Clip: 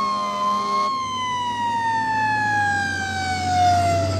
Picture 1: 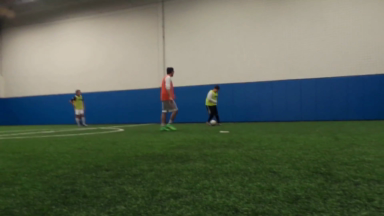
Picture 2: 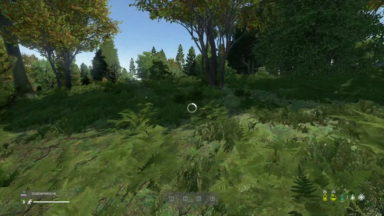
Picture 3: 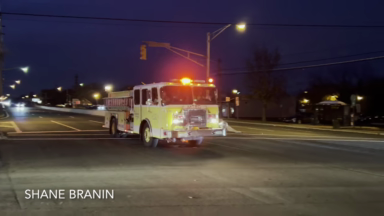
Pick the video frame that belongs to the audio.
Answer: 3